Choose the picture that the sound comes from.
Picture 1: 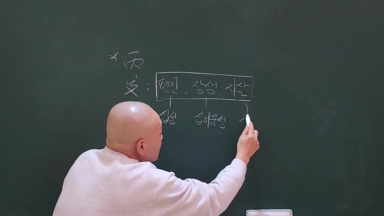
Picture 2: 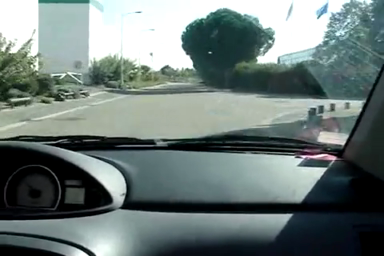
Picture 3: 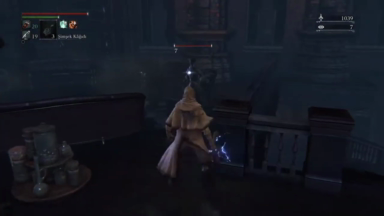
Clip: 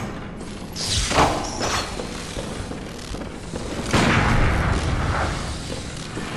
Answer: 3